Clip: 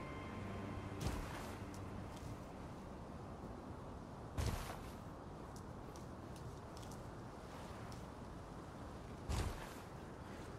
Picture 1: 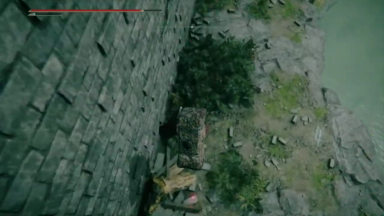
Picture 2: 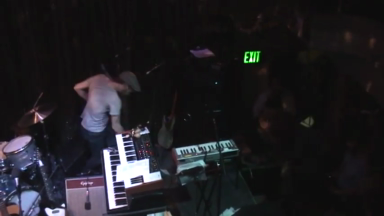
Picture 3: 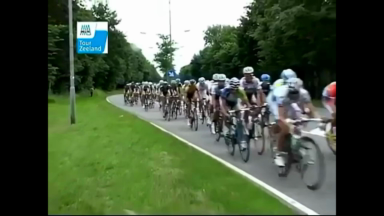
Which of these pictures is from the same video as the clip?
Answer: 1